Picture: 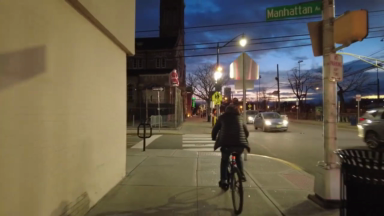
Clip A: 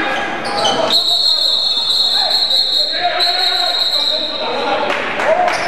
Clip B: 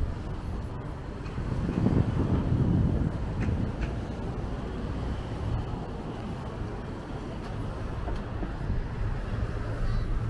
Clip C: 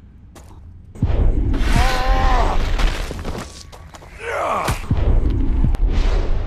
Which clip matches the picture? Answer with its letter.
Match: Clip B